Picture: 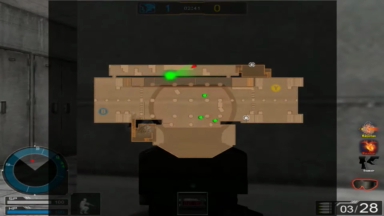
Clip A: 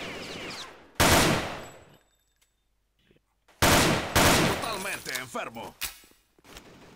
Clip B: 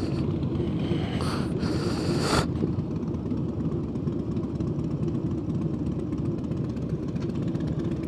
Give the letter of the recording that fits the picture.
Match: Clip A